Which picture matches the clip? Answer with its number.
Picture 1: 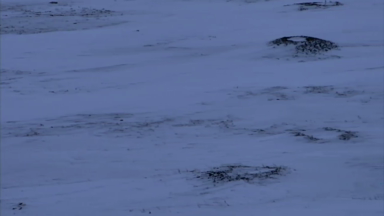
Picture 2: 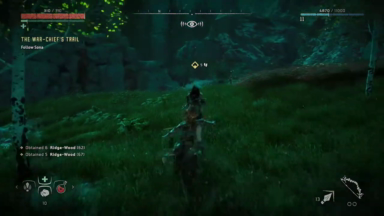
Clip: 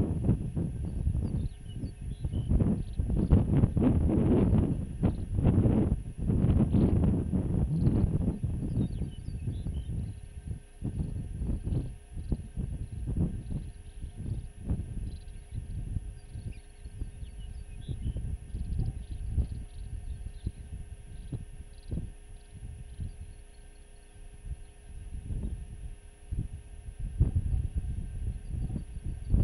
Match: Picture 1